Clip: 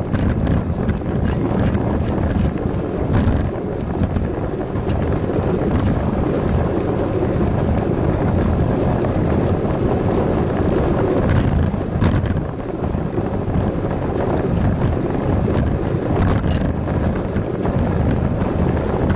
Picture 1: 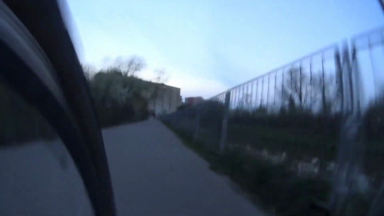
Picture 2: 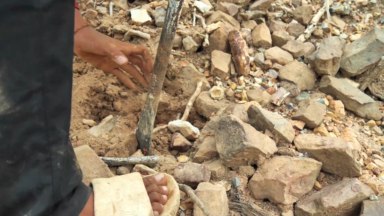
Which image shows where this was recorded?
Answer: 1